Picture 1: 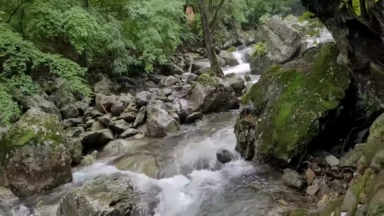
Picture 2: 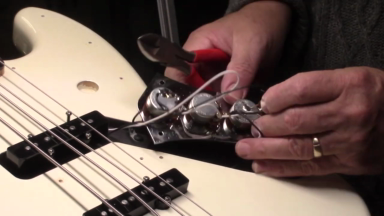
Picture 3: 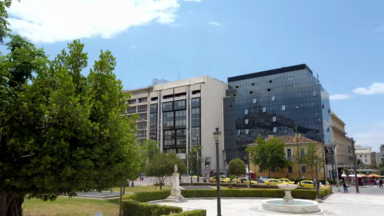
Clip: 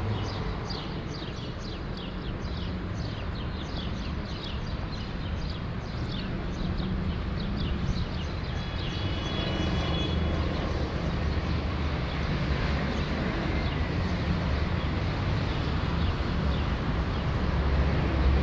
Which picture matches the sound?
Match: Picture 3